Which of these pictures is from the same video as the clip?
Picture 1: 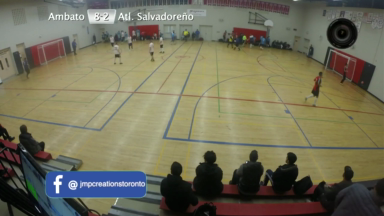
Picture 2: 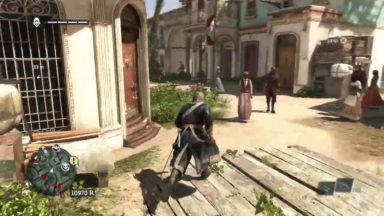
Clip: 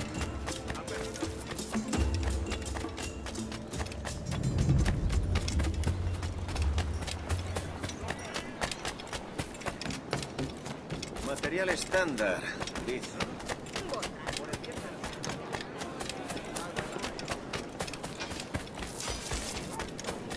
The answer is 2